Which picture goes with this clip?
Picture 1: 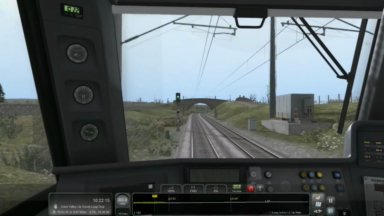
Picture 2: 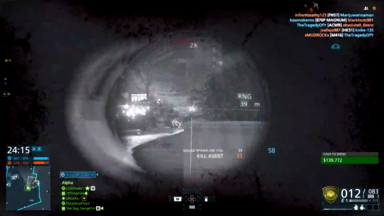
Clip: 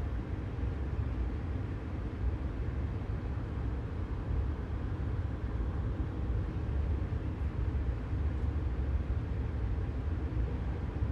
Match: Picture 1